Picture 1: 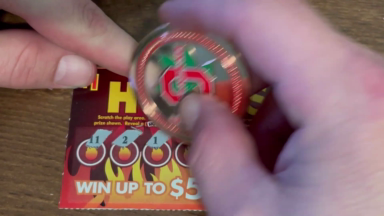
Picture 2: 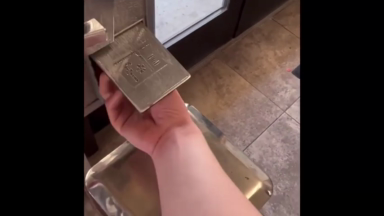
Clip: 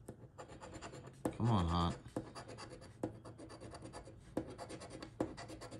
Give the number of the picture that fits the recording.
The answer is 1